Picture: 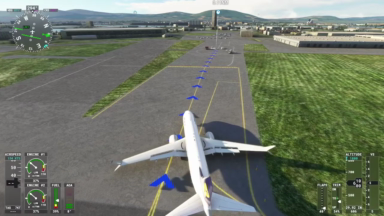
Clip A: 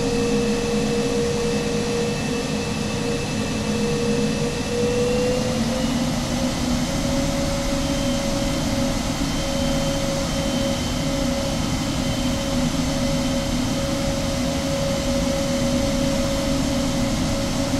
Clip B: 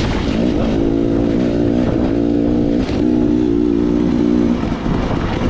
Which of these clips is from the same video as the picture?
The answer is A